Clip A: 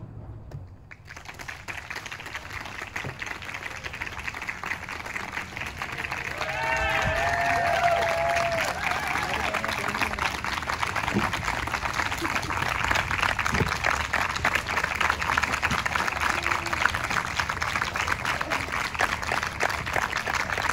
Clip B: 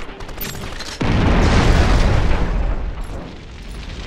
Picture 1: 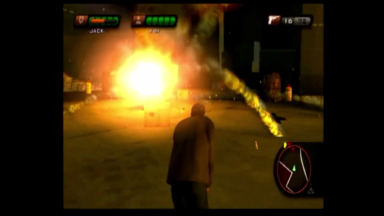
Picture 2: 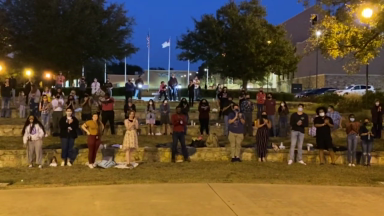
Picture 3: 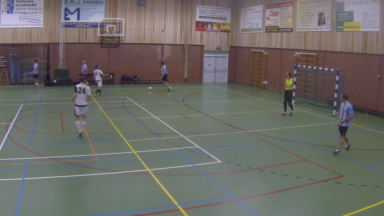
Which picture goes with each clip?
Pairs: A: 2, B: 1